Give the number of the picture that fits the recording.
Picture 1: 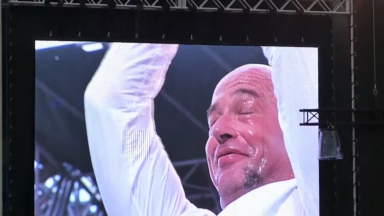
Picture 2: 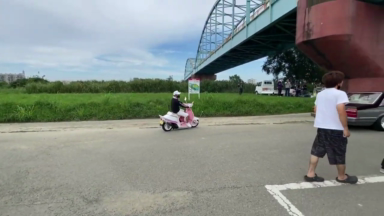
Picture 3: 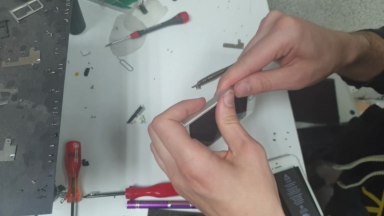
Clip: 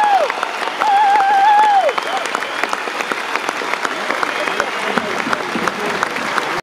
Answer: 1